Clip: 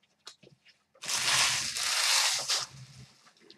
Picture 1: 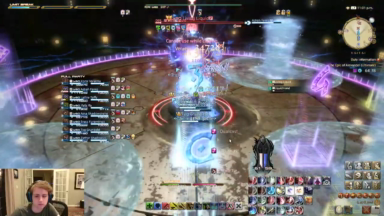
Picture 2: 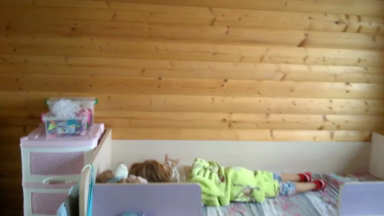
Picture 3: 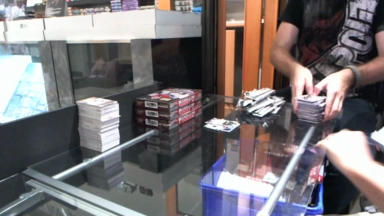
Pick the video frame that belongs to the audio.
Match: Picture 3